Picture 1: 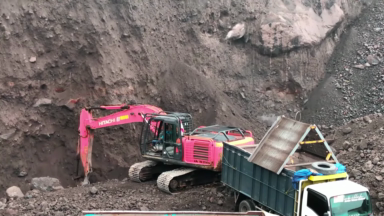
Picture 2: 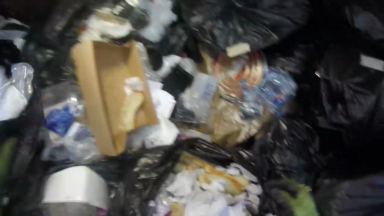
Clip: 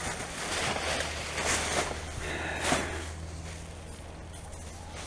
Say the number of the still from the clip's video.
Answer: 2